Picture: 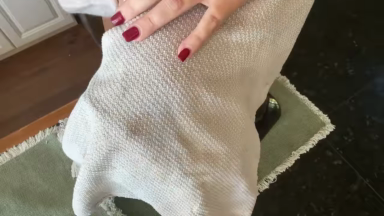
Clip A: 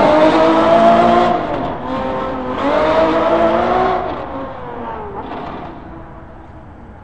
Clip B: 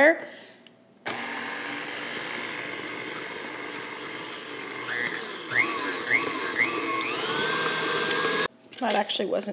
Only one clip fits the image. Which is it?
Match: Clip B